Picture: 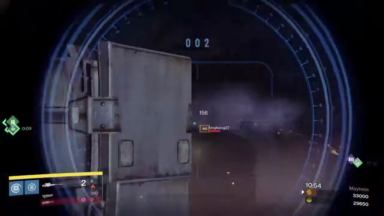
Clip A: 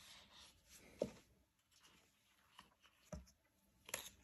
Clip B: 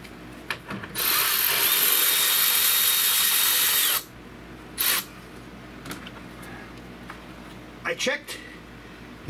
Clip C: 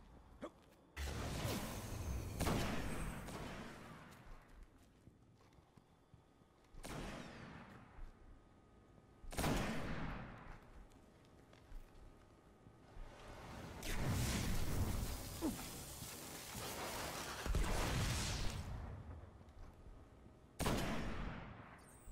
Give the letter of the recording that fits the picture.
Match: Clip C